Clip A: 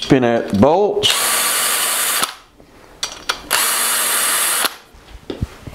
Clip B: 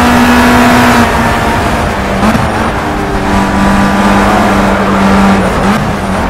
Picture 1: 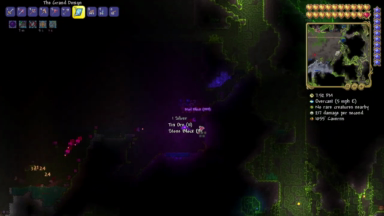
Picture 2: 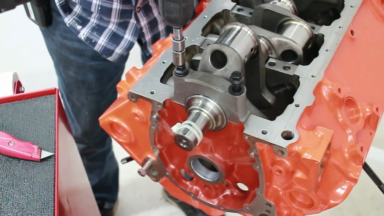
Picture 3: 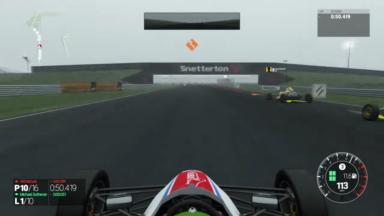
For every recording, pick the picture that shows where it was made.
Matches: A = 2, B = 3